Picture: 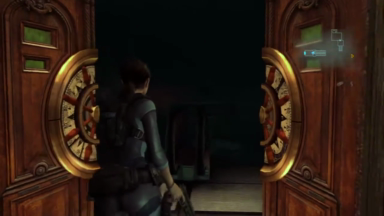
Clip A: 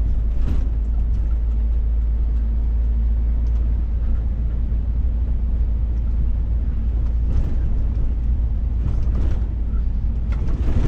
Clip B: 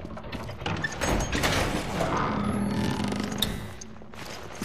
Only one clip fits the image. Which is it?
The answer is B